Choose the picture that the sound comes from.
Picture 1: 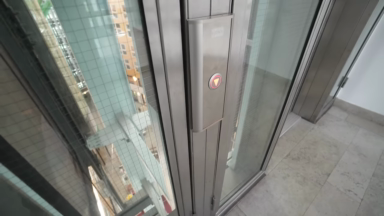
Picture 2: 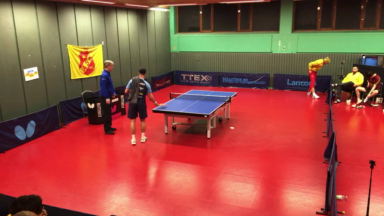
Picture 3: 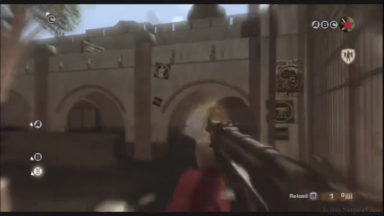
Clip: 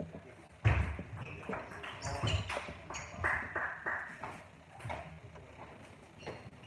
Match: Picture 2